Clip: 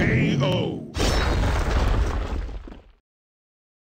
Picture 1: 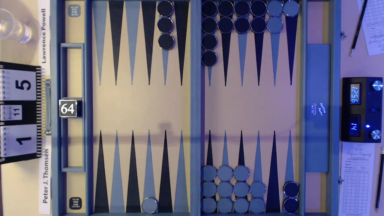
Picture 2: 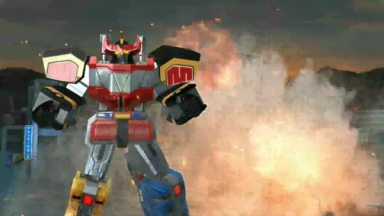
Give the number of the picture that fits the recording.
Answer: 2